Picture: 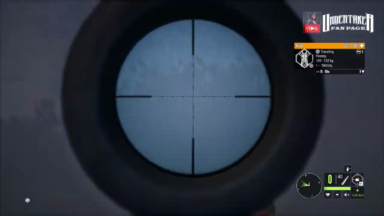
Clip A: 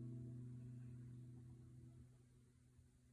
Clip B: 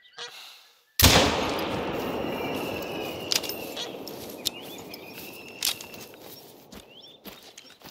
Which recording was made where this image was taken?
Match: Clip B